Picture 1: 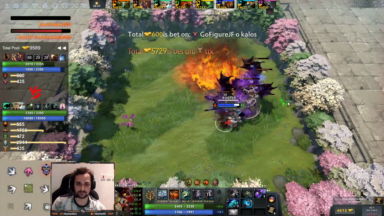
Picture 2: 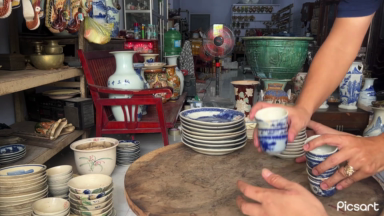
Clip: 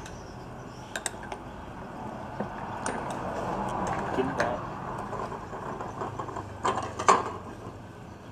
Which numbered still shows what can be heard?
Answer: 2